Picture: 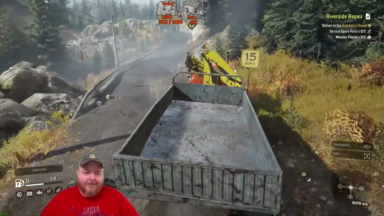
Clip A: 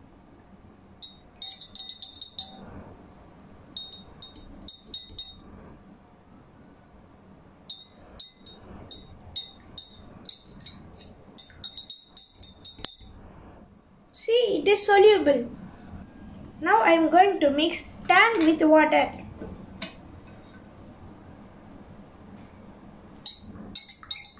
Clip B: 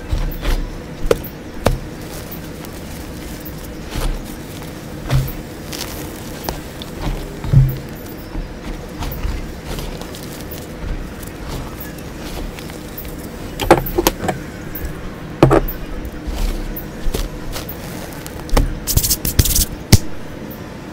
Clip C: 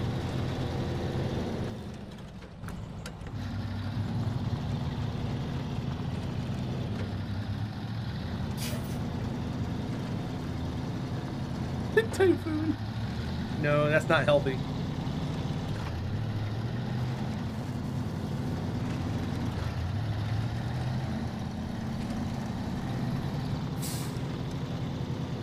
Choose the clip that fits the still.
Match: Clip C